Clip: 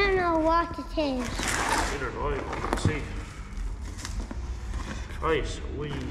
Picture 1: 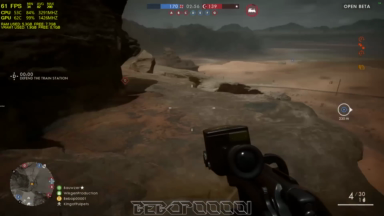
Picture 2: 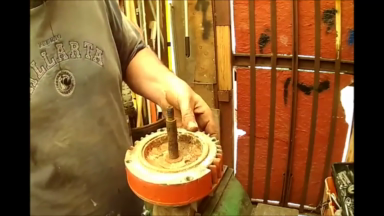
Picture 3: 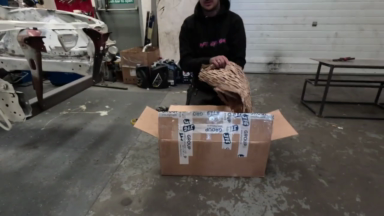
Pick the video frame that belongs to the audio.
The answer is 3